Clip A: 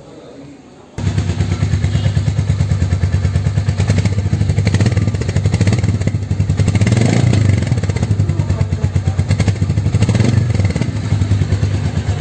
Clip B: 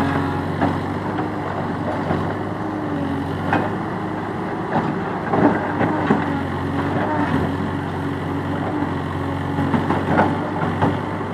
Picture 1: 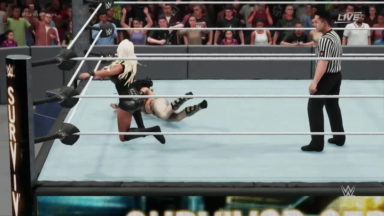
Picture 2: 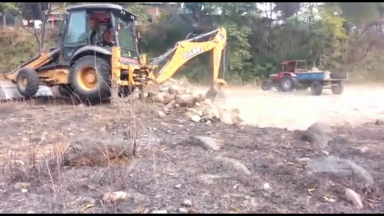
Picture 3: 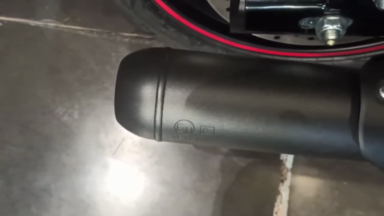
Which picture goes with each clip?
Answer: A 3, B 2